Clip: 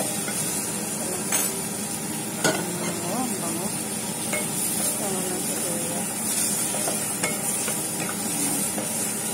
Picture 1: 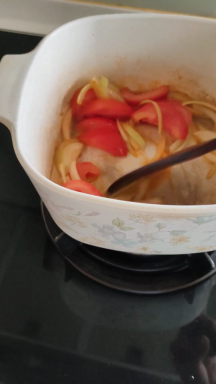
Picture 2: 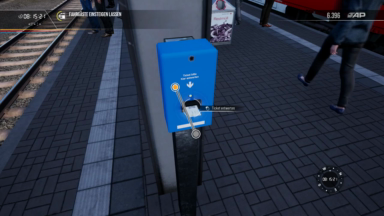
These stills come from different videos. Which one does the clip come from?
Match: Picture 1